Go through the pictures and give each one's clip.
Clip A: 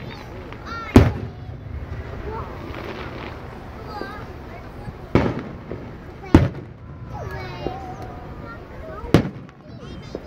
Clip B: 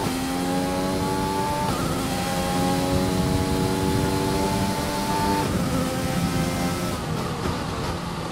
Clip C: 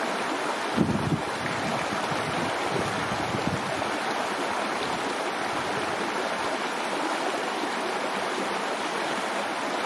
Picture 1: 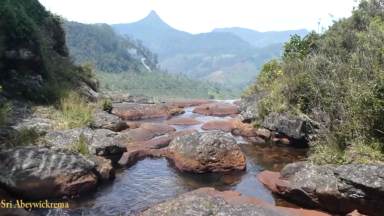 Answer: C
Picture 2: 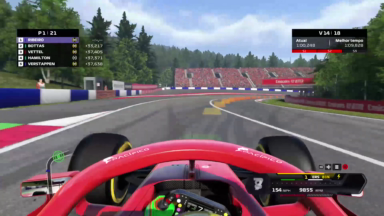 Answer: B